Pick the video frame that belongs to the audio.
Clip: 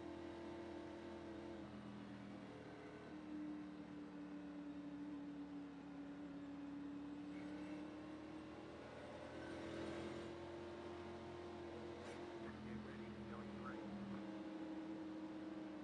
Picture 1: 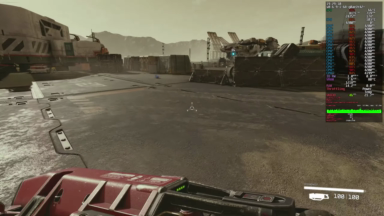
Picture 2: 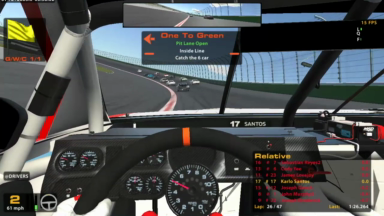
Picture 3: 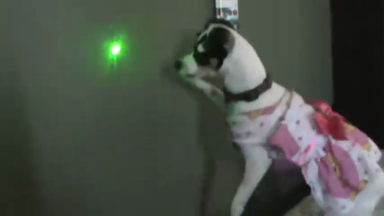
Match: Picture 2